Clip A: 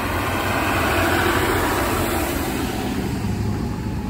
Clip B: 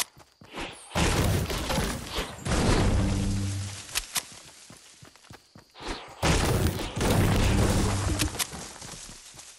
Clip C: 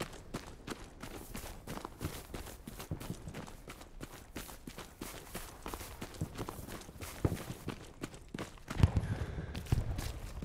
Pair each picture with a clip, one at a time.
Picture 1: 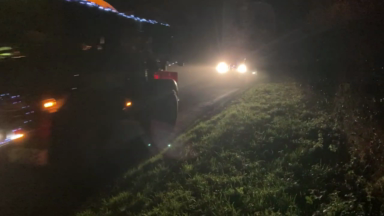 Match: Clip A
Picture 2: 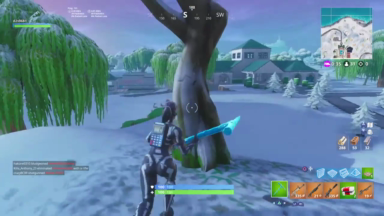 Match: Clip B